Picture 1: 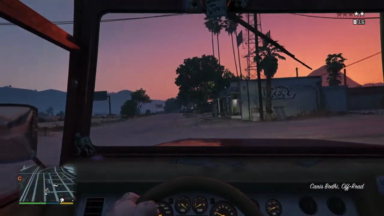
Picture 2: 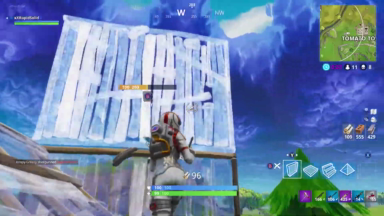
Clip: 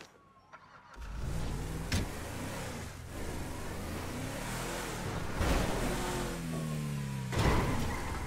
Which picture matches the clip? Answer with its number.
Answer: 1